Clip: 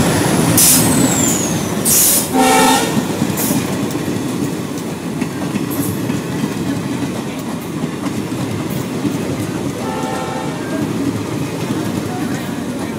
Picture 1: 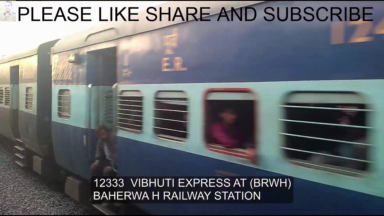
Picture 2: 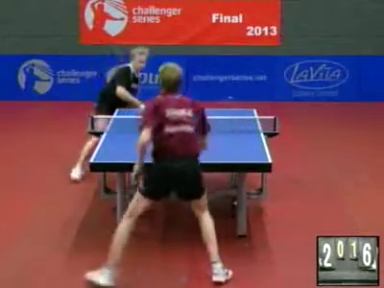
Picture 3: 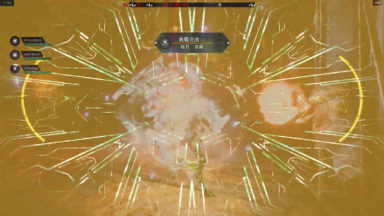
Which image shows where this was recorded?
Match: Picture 1